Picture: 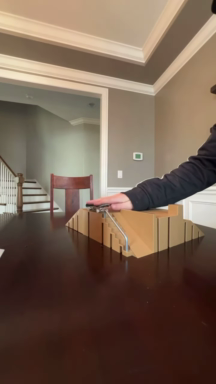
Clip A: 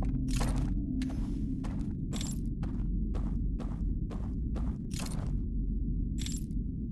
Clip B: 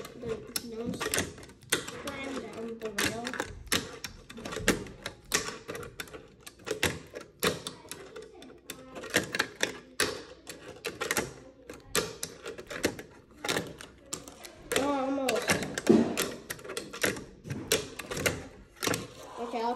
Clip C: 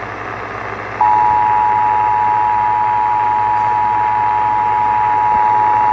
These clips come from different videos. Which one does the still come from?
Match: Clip B